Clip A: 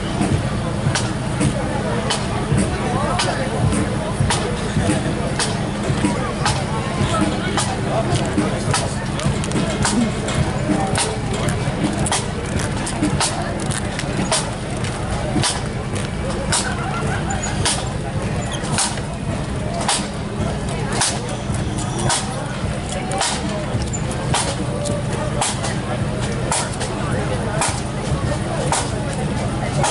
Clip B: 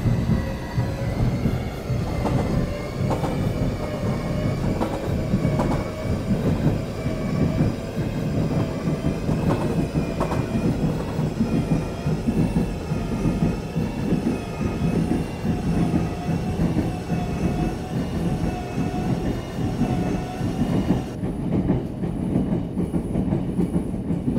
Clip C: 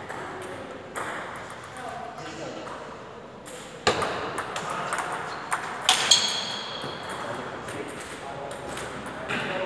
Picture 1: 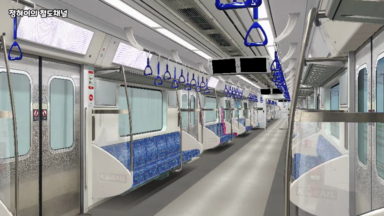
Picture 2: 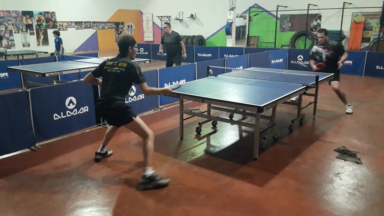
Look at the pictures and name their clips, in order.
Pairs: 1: B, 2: C